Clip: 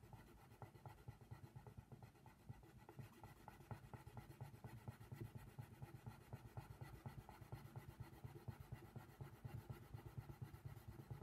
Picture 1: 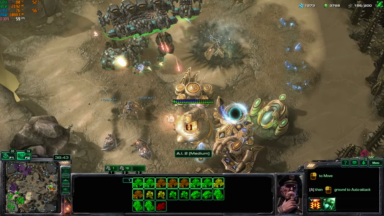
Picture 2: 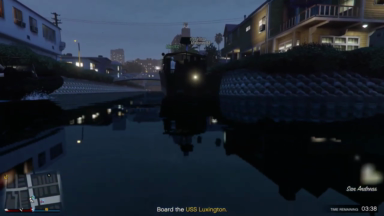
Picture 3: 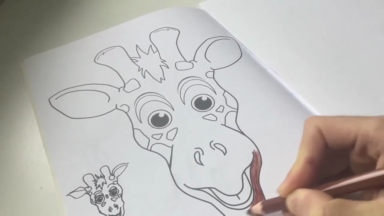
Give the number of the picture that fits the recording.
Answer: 3